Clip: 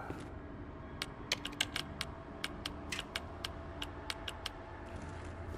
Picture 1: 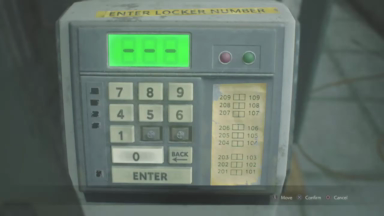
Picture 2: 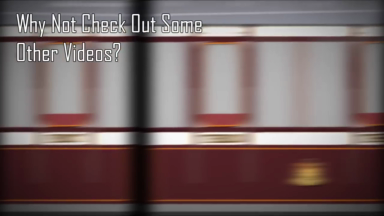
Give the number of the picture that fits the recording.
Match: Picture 1